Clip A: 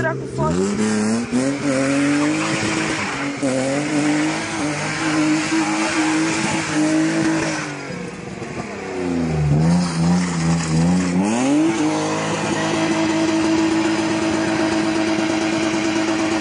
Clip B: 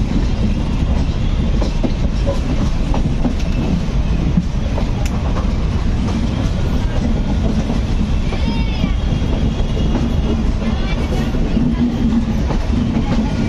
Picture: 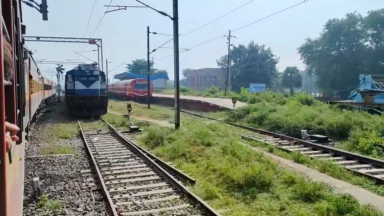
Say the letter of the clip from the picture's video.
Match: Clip B